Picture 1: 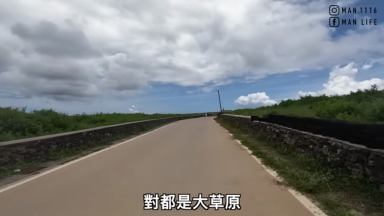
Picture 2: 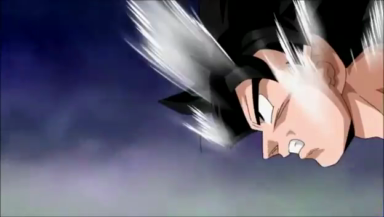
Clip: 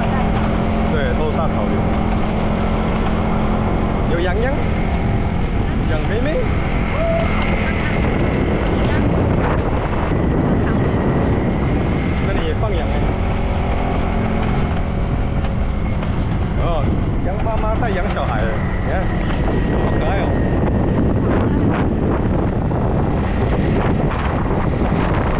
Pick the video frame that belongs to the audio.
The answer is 1